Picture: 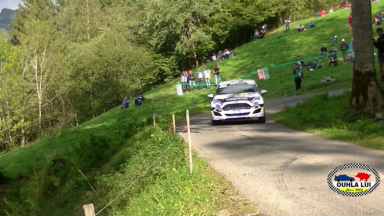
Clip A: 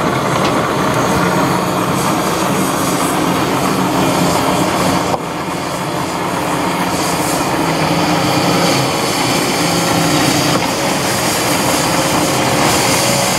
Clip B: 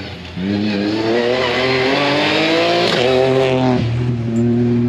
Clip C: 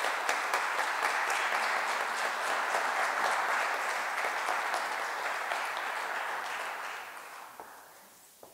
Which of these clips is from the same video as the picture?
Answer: B